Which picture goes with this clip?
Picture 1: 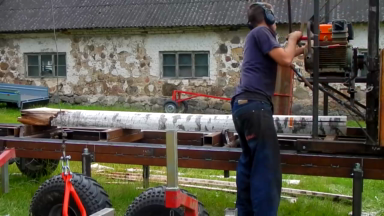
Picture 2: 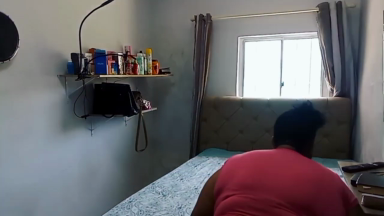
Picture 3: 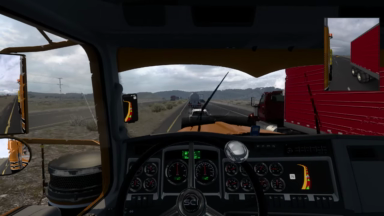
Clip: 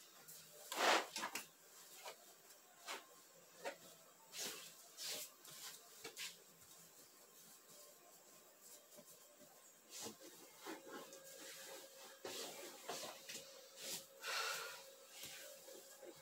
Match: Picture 2